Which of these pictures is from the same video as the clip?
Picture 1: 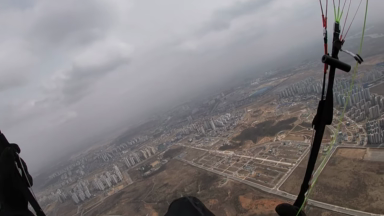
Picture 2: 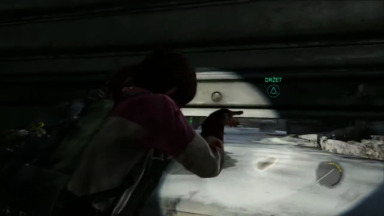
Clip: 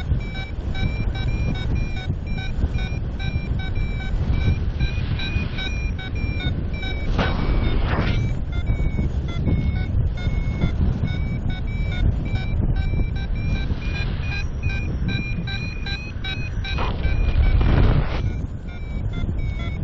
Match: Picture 1